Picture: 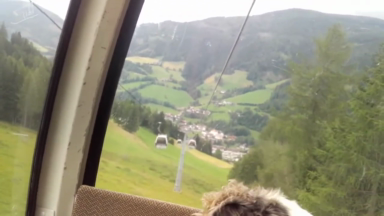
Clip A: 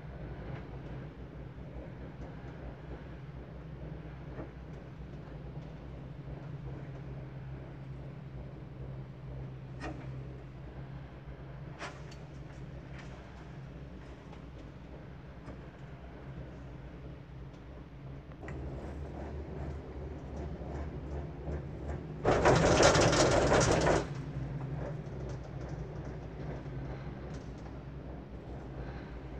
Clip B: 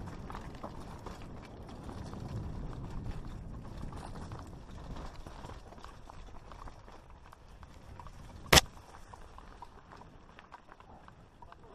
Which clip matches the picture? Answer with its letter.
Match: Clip A